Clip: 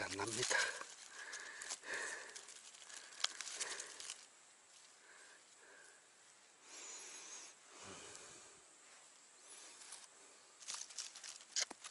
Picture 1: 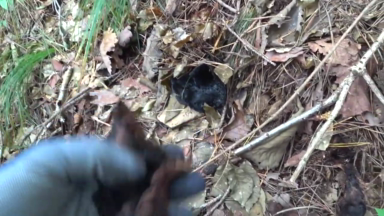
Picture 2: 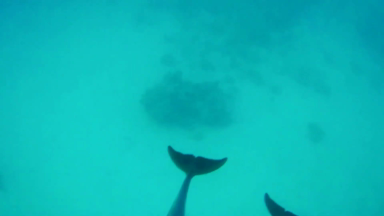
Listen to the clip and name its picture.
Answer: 1